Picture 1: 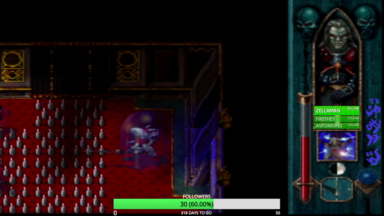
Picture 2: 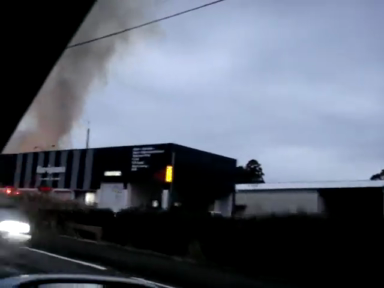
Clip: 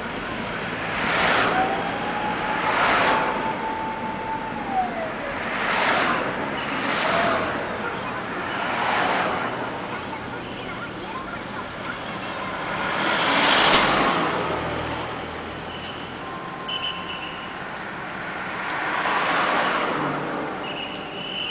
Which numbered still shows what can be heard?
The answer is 2